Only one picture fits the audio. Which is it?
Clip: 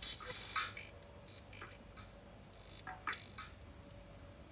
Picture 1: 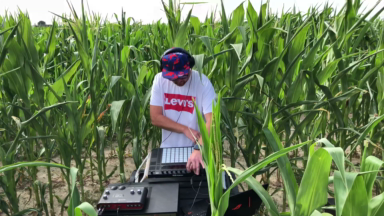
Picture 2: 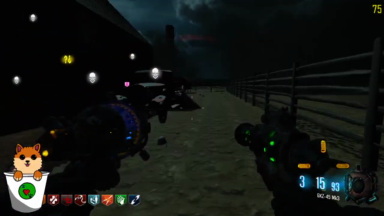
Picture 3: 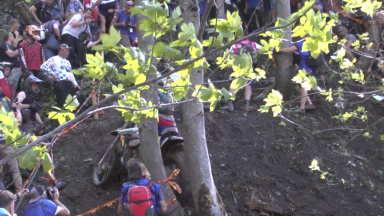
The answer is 1